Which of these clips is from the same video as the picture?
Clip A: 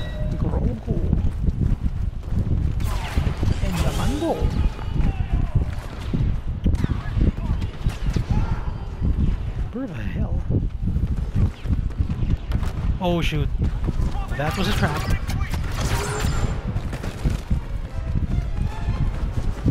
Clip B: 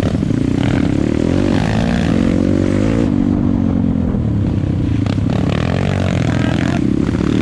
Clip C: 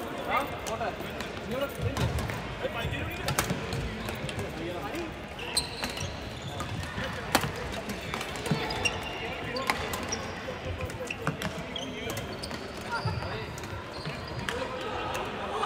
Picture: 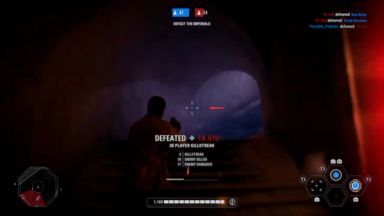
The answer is A